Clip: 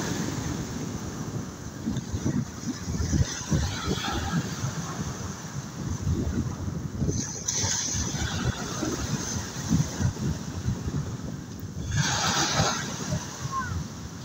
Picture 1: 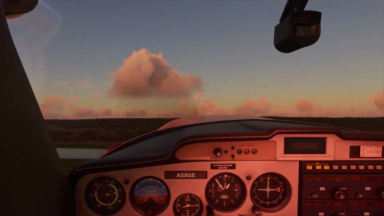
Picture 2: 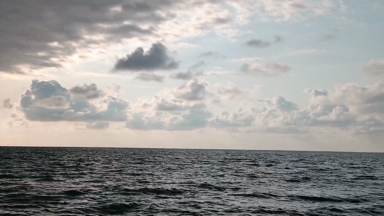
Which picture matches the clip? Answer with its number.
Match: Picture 2